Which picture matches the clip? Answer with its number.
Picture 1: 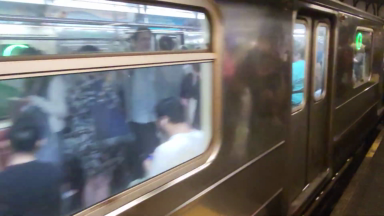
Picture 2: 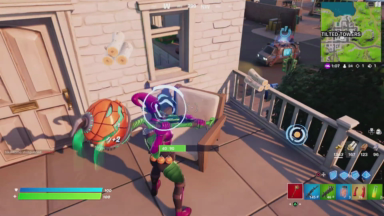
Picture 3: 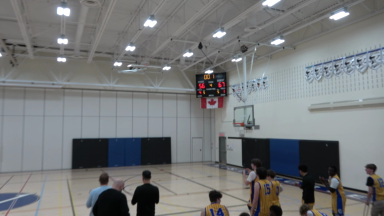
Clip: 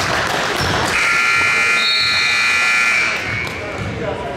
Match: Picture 3